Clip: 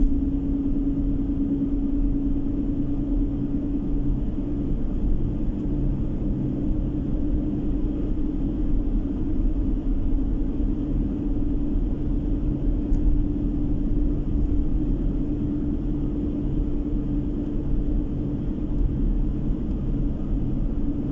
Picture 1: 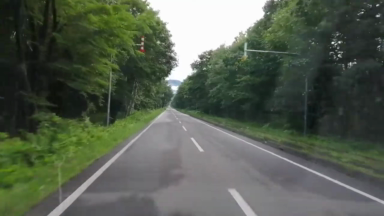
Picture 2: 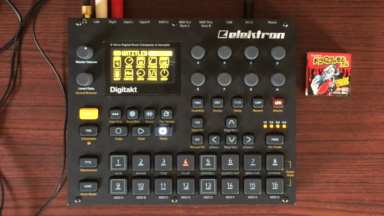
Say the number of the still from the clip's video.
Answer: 1